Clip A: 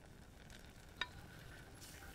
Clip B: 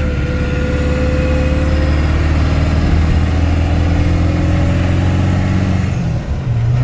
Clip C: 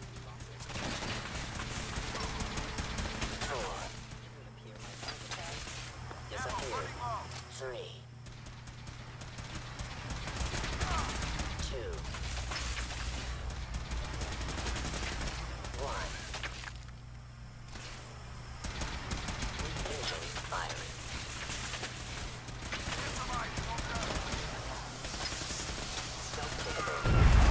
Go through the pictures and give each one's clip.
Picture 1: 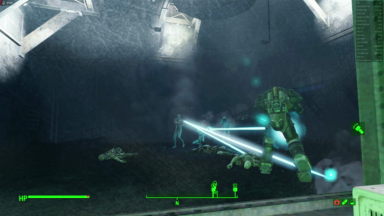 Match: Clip C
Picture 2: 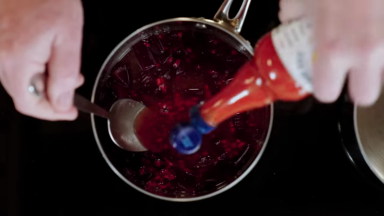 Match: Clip A